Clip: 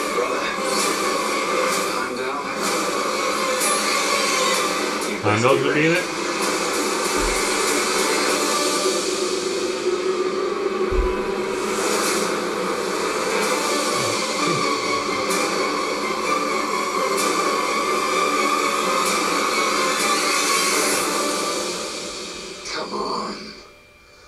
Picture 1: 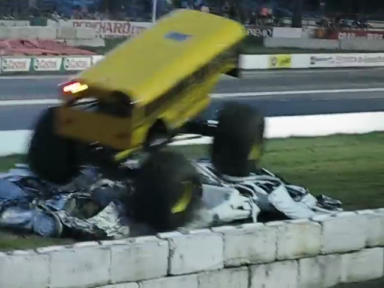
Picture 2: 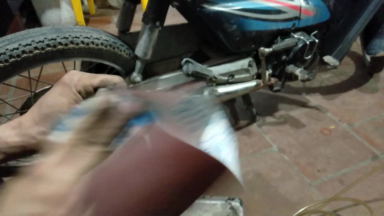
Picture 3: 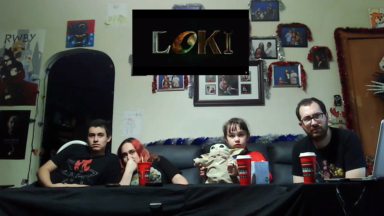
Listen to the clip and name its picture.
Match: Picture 3